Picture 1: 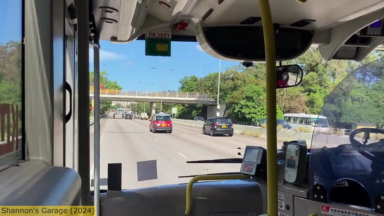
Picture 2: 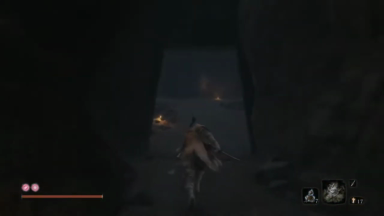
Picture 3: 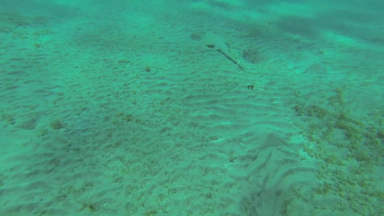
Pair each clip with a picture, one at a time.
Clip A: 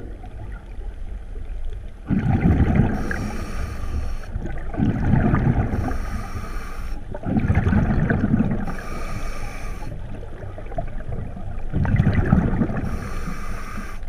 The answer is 3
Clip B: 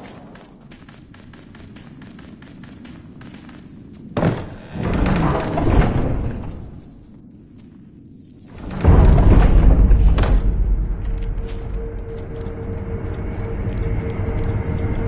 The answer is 2